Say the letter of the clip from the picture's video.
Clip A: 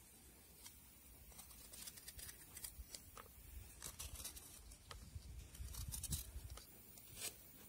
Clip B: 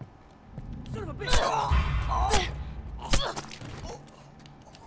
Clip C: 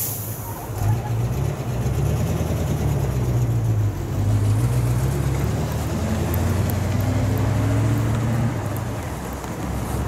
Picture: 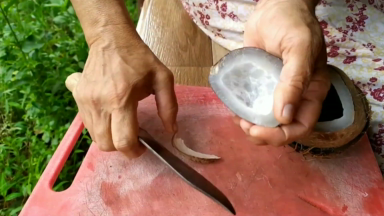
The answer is A